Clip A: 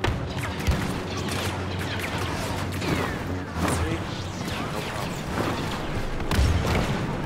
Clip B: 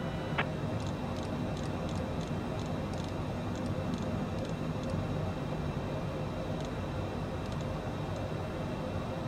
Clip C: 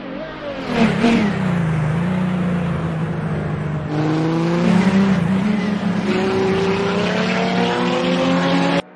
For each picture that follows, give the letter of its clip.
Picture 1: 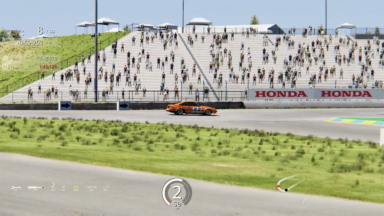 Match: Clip C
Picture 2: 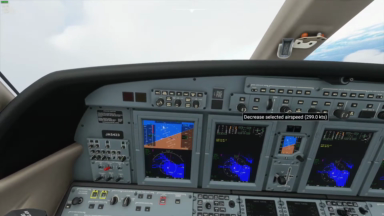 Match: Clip B